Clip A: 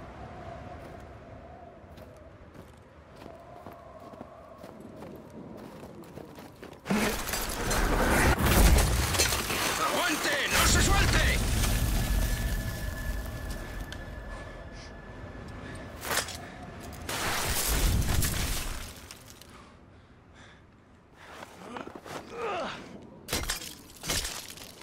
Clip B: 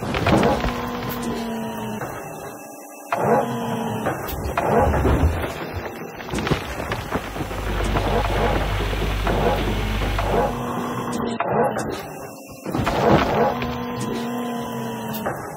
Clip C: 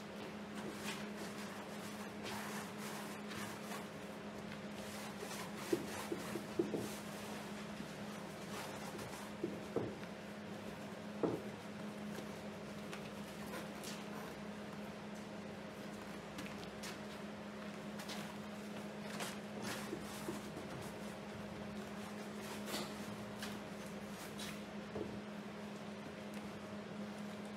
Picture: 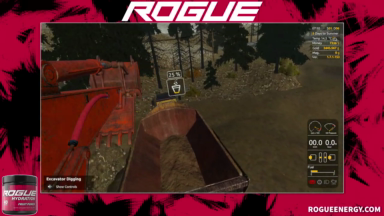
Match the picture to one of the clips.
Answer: B